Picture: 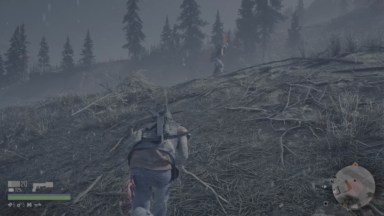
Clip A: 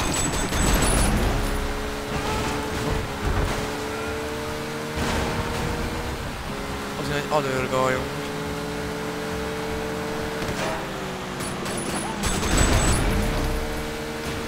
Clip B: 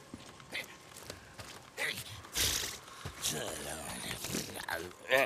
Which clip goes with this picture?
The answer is B